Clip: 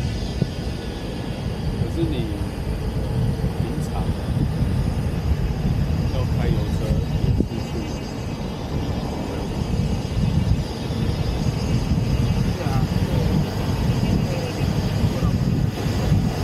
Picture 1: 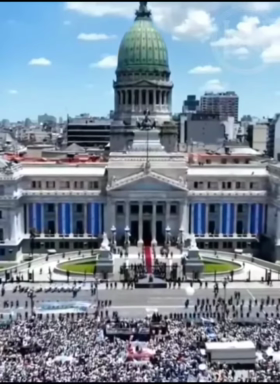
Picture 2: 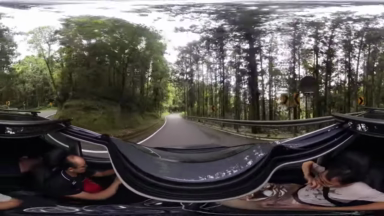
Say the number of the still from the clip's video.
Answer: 2